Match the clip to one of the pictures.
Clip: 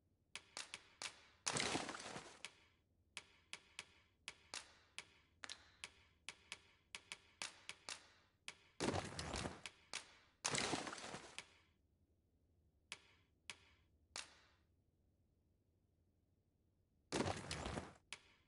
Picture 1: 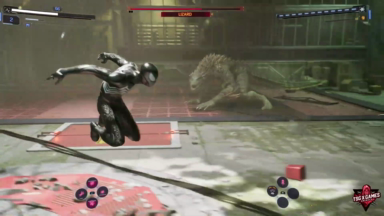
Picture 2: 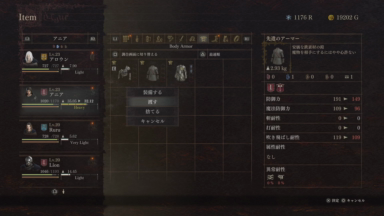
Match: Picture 2